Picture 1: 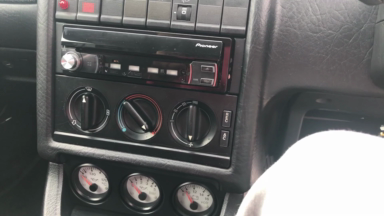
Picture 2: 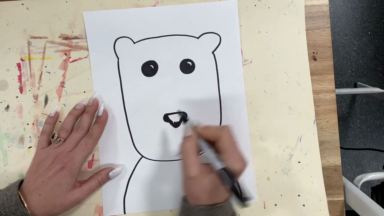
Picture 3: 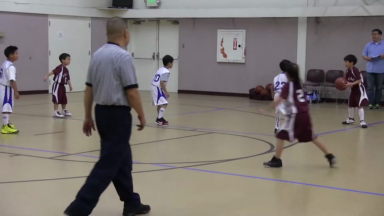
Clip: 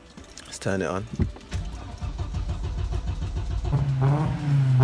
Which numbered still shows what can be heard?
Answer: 1